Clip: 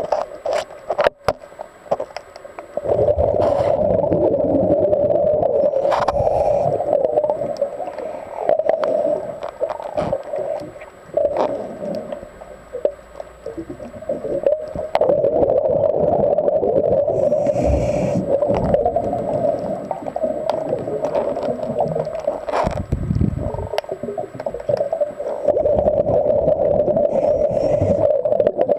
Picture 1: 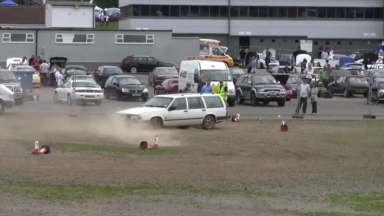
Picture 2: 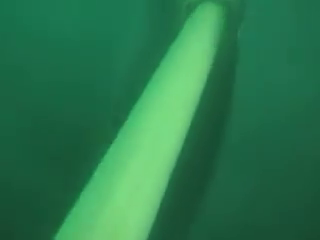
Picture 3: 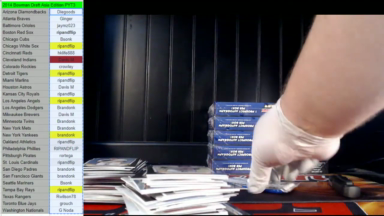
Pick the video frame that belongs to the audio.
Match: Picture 2